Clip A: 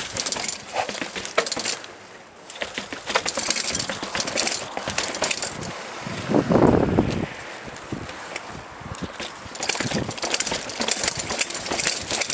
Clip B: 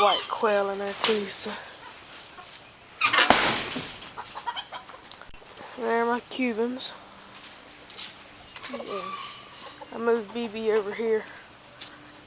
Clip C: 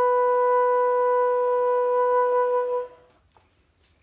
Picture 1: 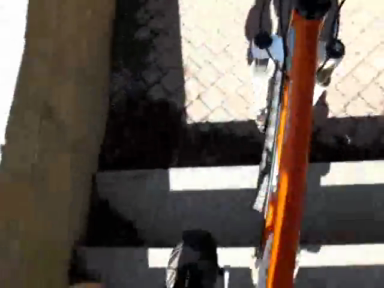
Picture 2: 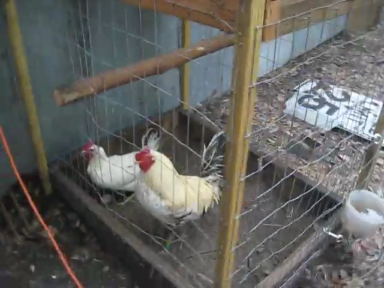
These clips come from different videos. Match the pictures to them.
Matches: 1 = A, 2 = B